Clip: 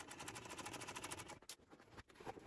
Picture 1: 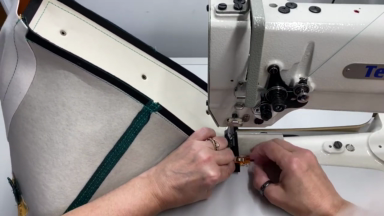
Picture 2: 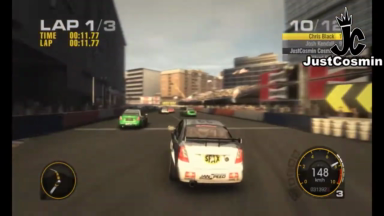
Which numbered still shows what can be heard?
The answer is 1